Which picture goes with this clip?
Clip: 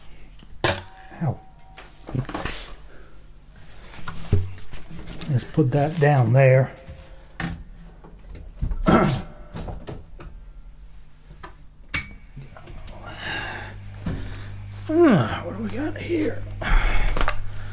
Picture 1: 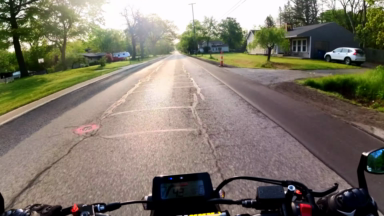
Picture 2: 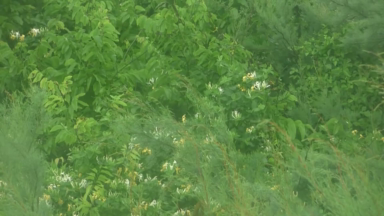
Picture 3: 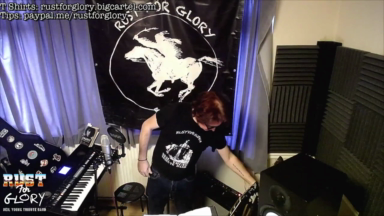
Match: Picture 3